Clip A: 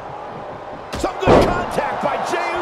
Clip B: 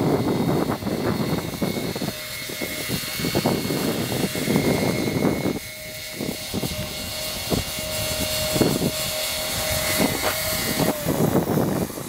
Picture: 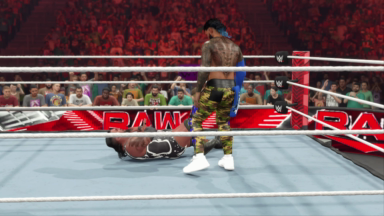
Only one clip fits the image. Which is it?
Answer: A